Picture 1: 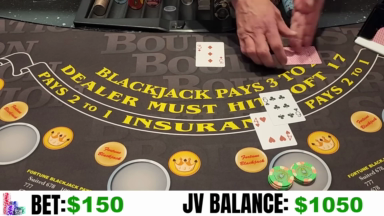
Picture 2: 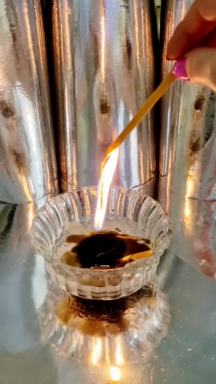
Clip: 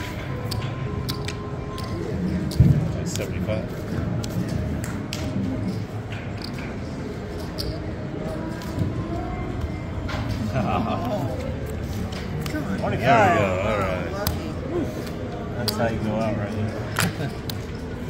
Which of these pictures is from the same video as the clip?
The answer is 1